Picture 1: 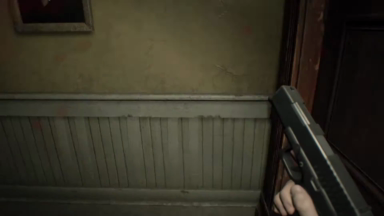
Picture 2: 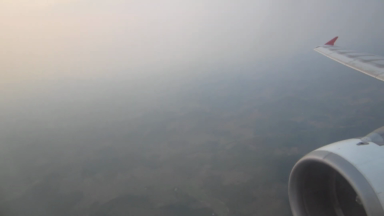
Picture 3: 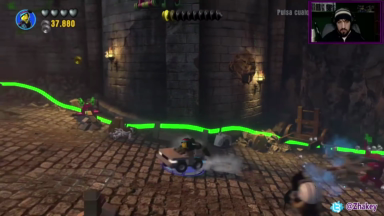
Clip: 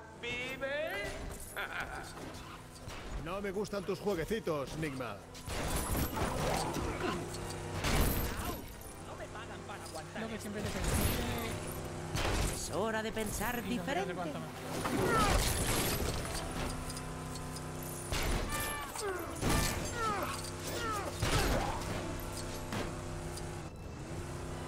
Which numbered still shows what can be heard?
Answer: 3